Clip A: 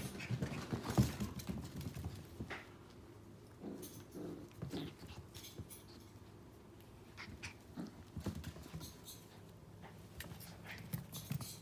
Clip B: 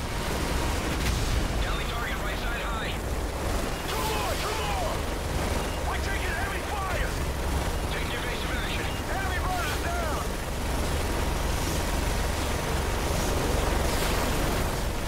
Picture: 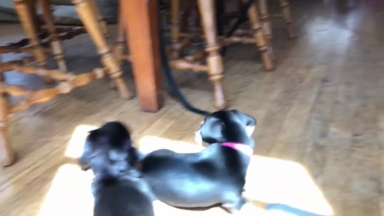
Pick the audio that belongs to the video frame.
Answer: A